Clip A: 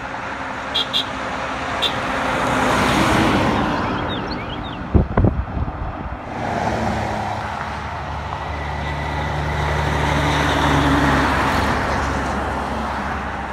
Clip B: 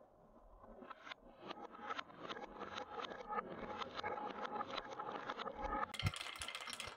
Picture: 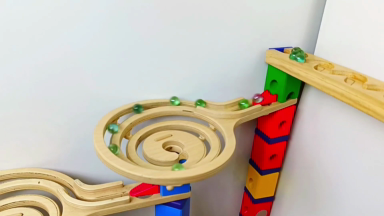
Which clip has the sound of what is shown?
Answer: B